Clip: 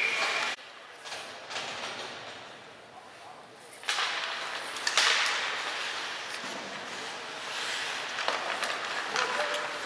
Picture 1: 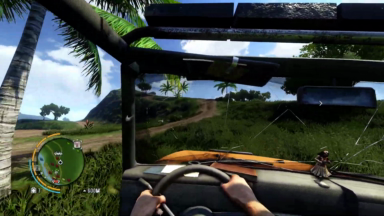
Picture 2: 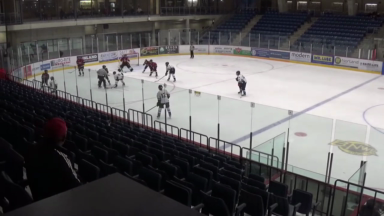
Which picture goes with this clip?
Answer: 2